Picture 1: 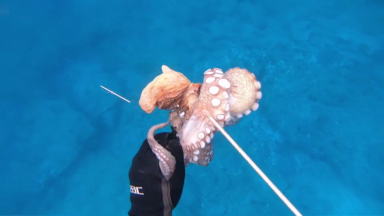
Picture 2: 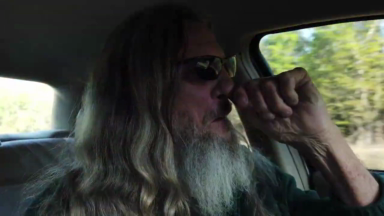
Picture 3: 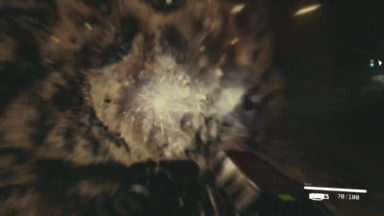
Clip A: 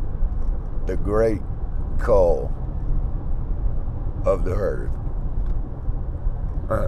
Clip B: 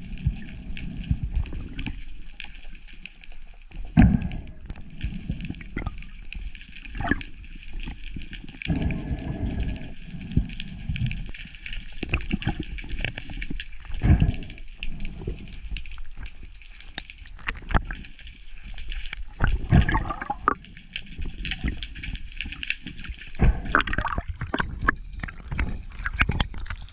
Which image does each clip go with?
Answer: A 2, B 1